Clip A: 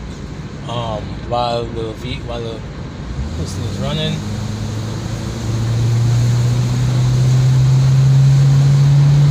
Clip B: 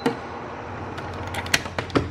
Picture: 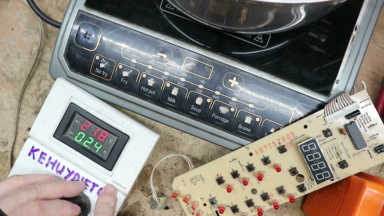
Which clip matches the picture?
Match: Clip B